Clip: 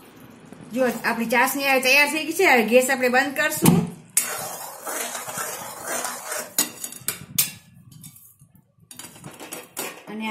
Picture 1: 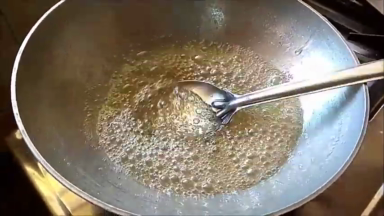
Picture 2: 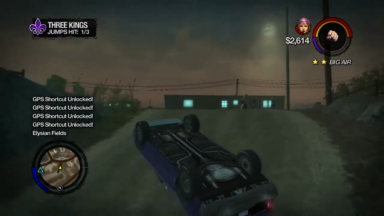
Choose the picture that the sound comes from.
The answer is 1